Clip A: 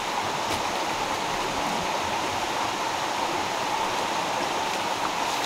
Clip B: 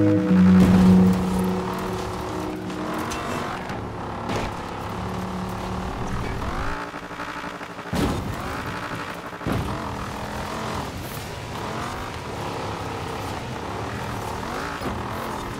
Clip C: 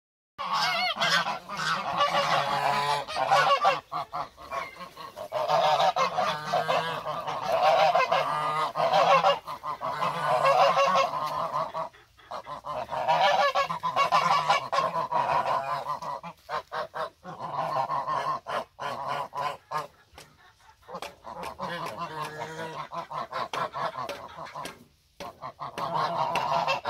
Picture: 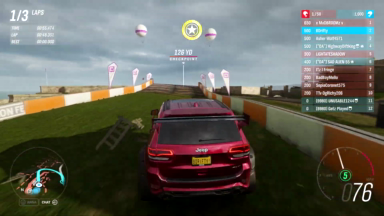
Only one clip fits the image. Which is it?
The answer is B